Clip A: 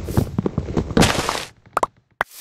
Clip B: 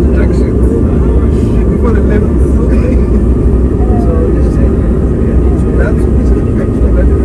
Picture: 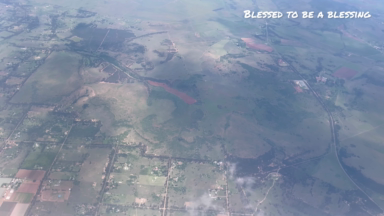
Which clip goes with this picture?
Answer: B